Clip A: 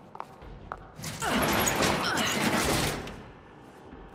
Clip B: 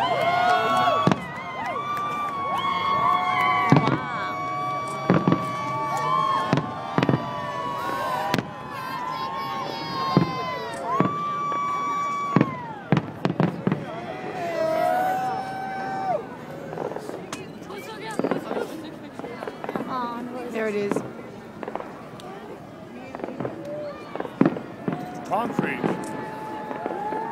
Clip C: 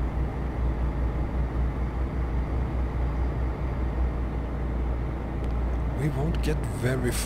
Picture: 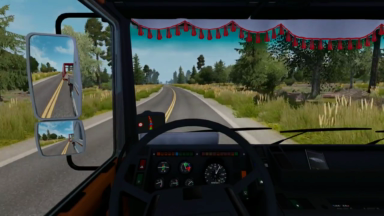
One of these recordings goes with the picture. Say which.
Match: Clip C